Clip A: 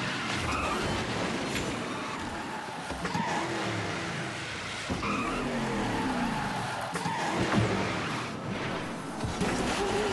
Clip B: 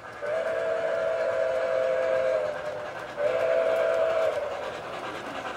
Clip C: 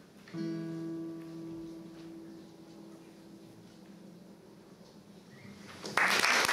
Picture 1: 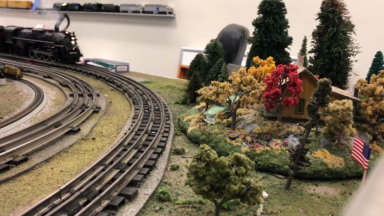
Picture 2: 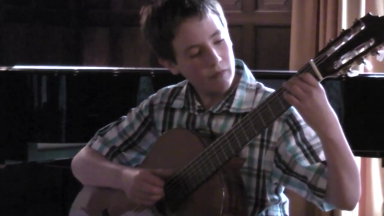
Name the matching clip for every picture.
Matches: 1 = B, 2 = C